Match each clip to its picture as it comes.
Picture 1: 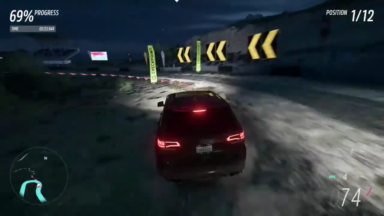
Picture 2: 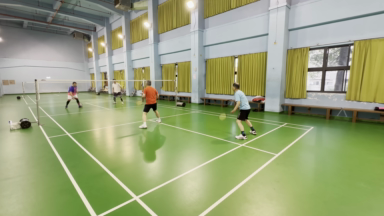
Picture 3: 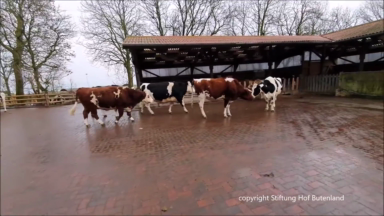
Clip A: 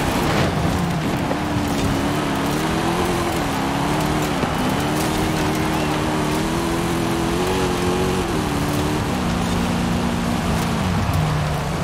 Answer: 1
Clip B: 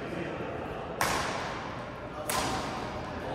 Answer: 2